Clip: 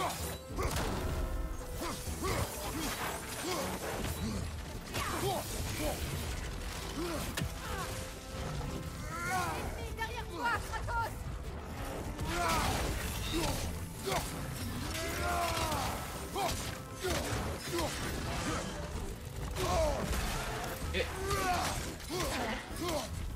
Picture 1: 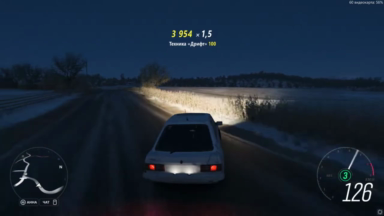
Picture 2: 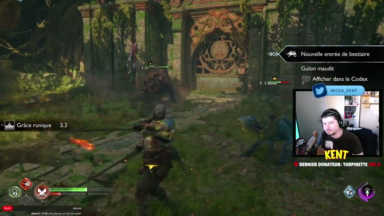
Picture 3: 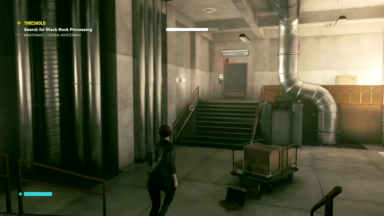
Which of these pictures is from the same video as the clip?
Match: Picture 2